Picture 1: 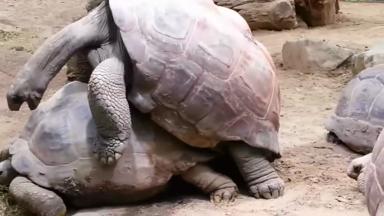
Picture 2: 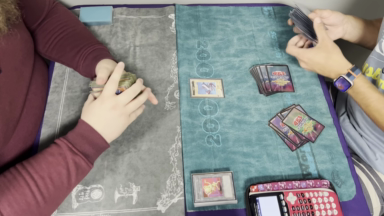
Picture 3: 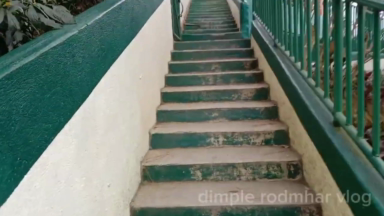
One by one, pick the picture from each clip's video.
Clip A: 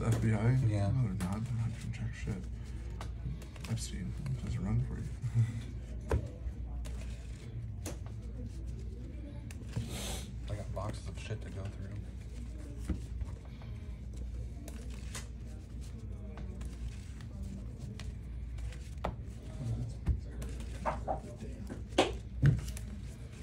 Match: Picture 2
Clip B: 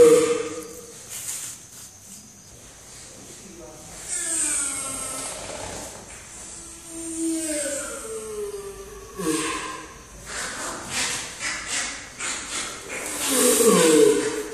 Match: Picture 1